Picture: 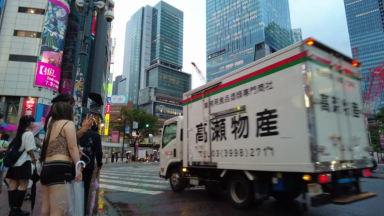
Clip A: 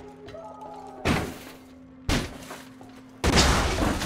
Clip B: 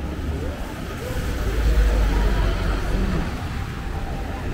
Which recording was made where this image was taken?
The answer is B